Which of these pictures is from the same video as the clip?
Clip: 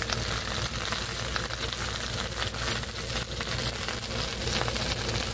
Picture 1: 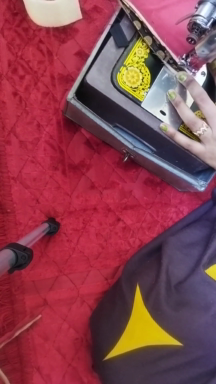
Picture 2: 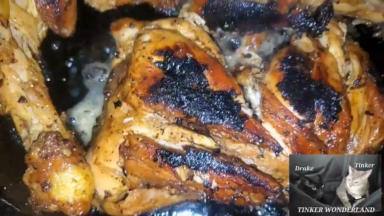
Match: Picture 2